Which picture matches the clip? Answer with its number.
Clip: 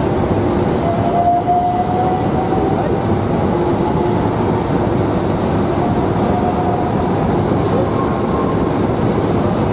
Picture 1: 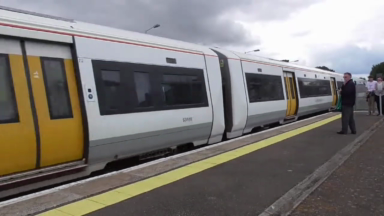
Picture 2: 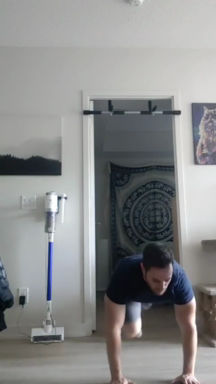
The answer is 1